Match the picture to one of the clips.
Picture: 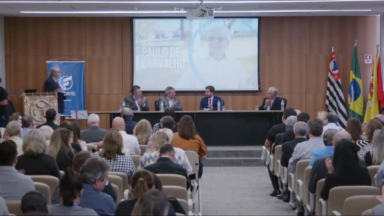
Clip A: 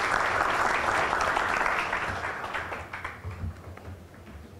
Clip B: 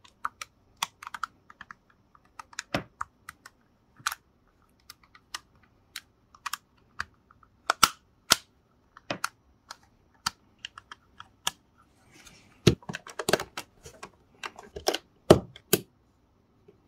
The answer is A